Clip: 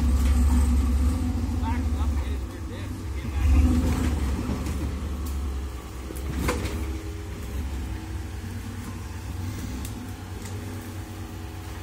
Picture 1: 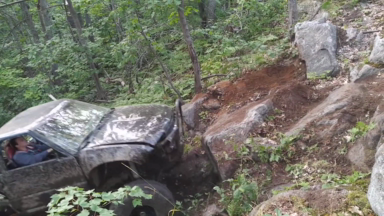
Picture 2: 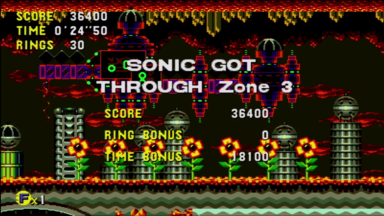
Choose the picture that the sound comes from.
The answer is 1